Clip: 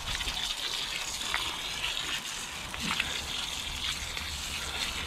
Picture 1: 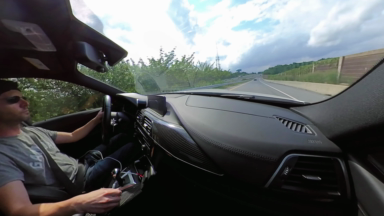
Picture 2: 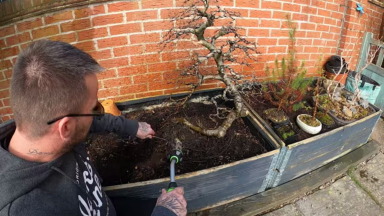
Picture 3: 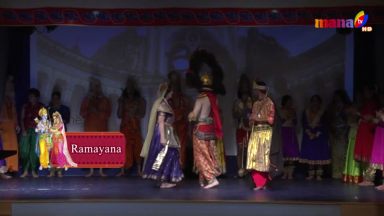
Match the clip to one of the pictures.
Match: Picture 2